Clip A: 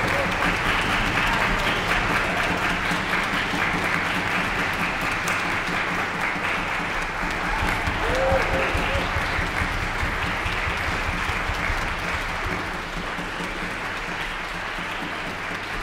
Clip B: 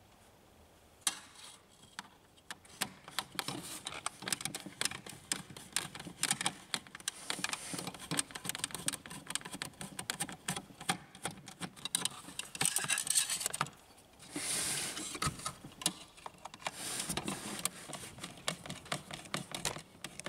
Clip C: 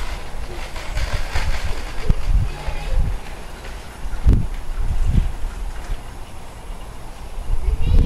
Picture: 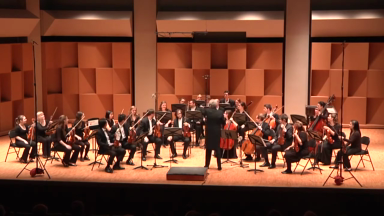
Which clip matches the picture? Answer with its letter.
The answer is A